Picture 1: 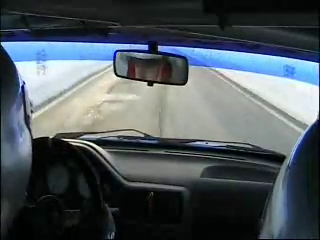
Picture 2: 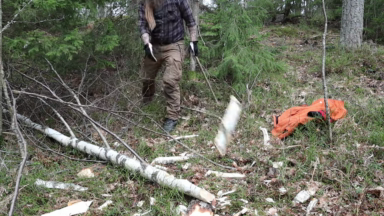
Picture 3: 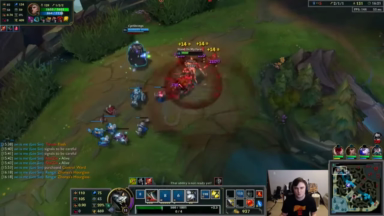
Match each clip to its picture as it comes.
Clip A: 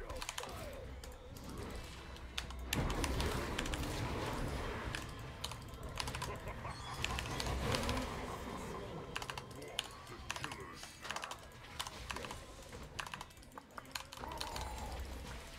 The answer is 3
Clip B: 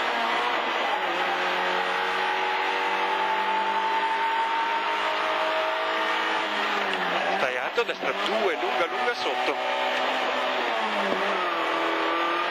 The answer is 1